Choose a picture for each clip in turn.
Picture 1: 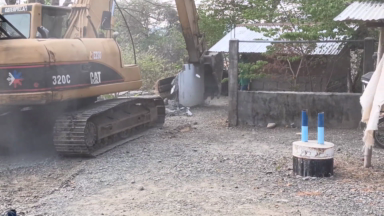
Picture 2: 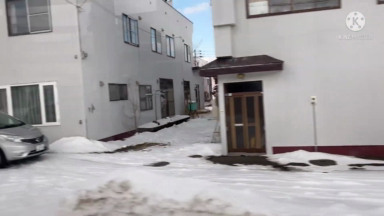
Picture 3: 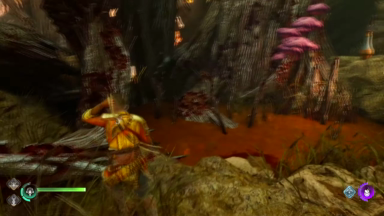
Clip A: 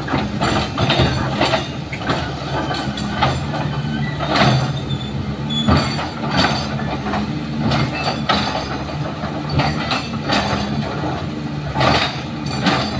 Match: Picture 1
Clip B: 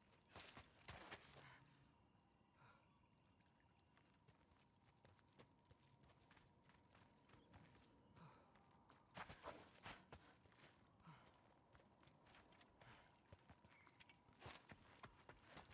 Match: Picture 3